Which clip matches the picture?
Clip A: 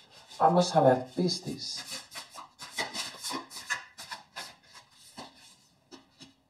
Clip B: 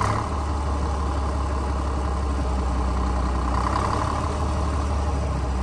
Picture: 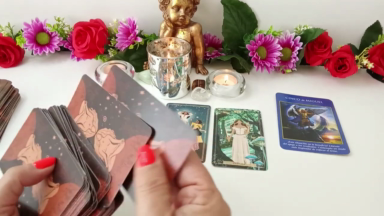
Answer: A